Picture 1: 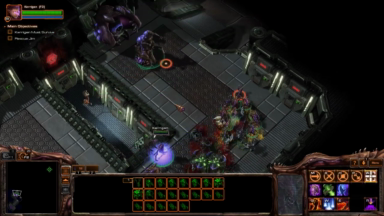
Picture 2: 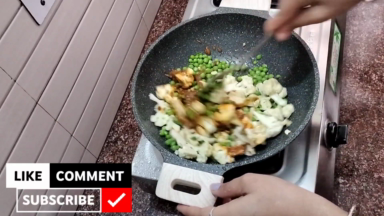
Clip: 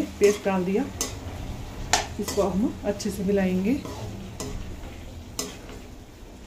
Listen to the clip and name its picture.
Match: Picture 2